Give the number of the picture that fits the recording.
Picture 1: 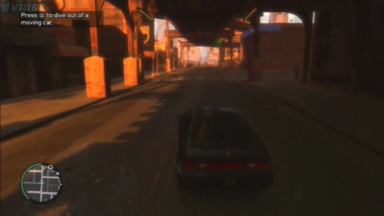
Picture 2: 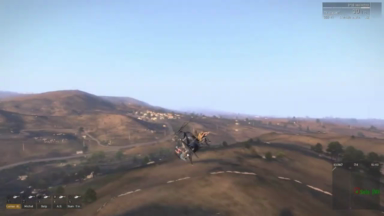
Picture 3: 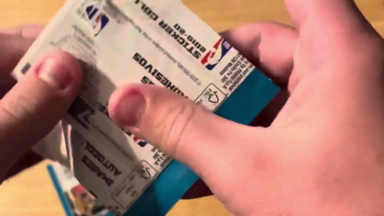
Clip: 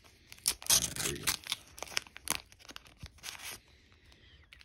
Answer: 3